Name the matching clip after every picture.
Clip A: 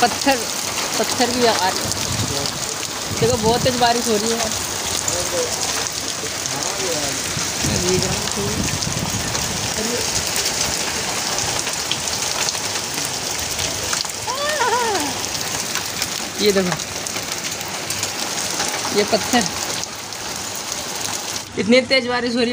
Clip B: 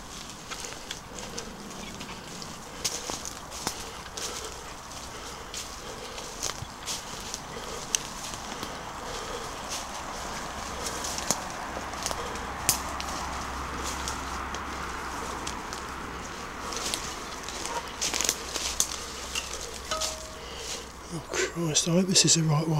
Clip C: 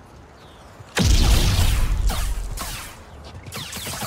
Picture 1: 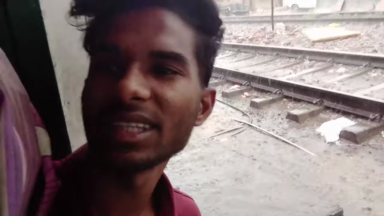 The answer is A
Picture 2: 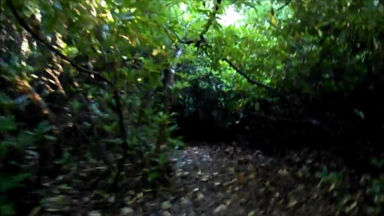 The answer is B